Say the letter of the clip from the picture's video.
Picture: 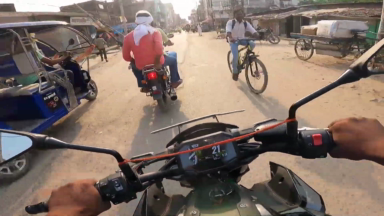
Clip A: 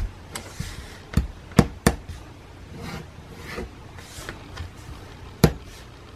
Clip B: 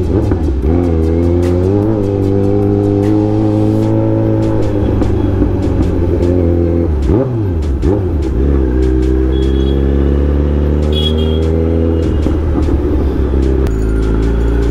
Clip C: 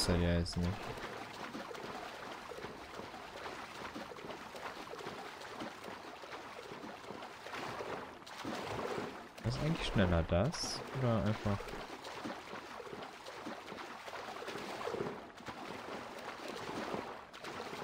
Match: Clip B